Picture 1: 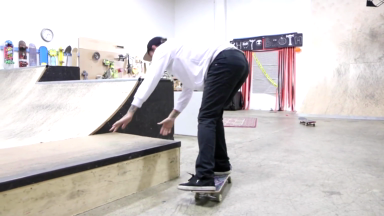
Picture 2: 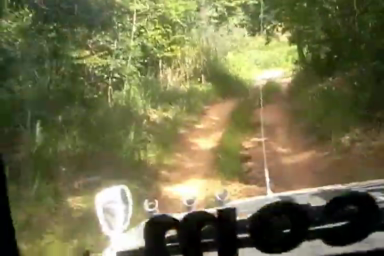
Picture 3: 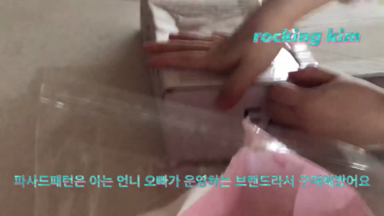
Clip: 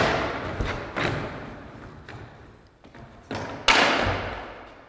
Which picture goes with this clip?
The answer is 1